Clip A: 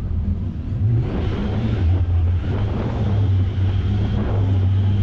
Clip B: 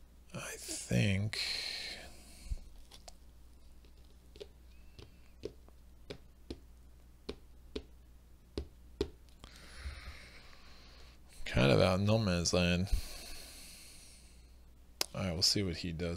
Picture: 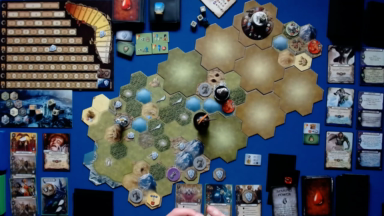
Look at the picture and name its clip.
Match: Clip B